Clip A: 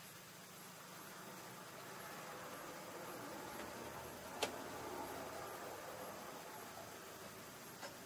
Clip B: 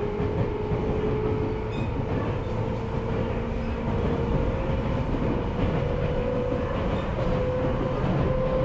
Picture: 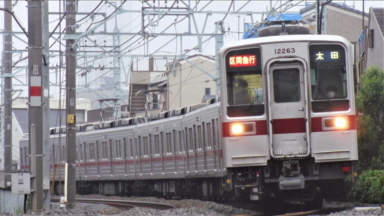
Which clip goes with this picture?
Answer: B